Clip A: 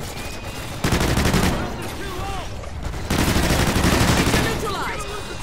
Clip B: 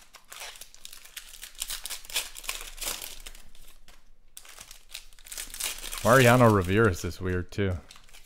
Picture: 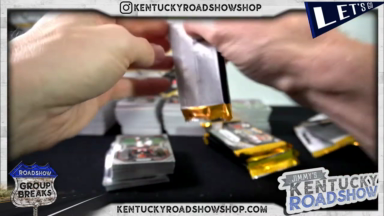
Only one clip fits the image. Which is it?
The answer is B